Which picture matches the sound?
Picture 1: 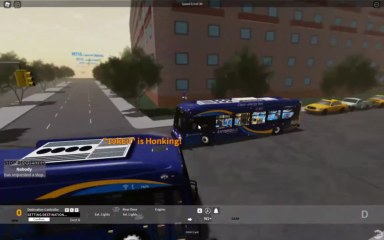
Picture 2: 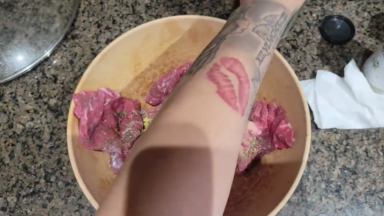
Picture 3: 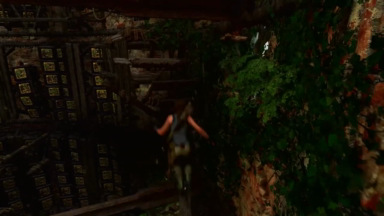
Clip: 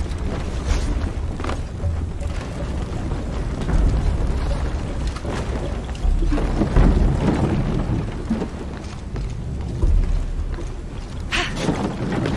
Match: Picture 3